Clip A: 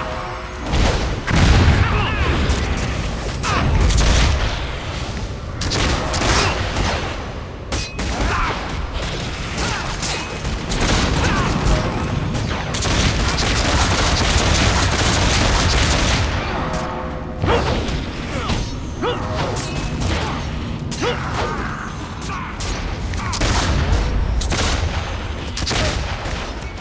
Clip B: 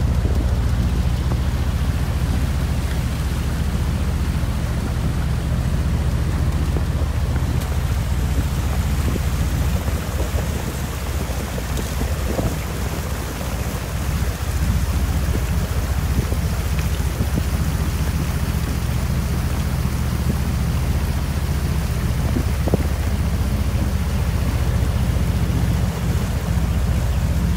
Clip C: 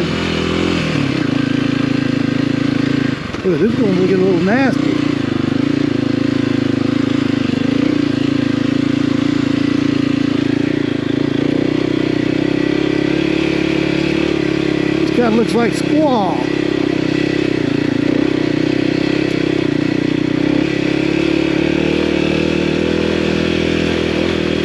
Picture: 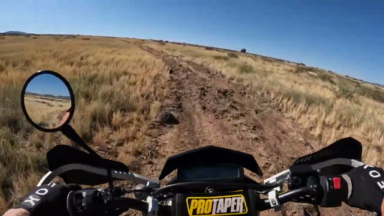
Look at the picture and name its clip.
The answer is C